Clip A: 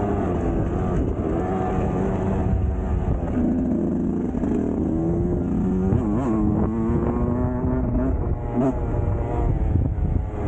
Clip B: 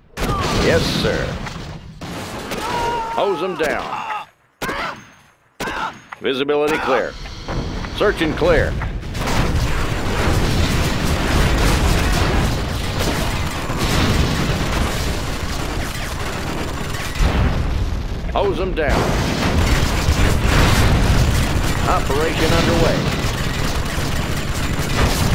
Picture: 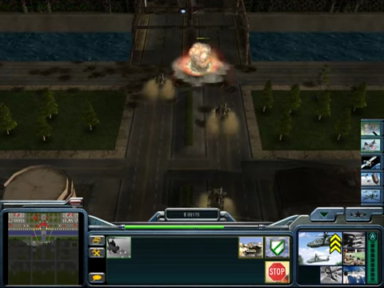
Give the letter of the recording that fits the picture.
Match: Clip B